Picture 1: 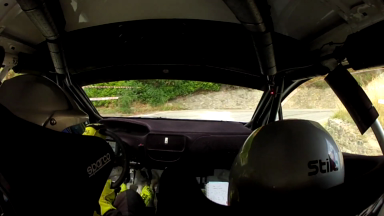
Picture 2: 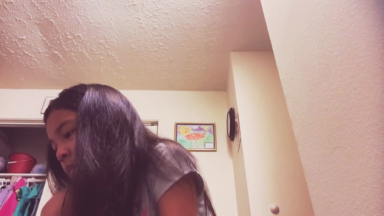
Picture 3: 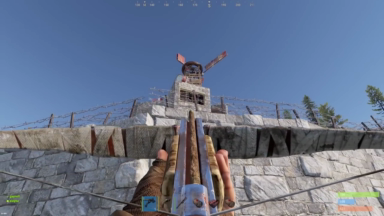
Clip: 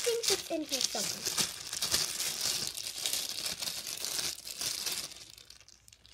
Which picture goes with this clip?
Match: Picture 2